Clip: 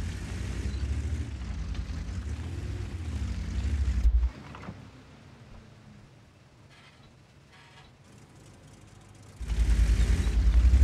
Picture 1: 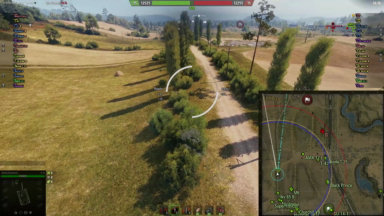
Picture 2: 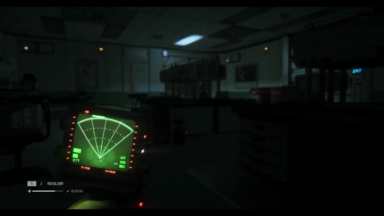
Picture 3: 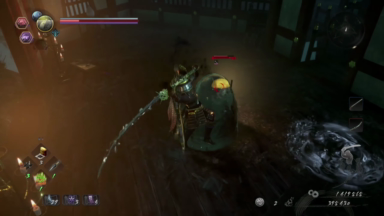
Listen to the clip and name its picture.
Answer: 1